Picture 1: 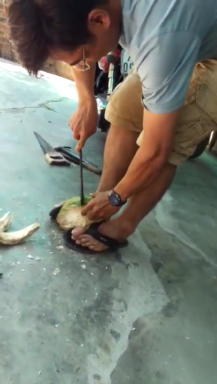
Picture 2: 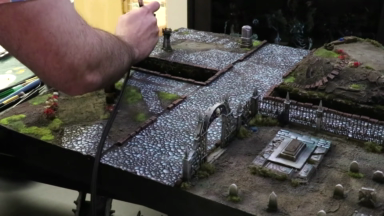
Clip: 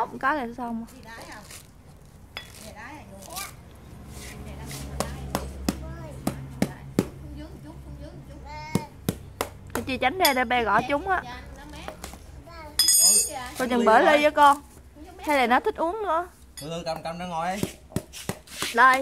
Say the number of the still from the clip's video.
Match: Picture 1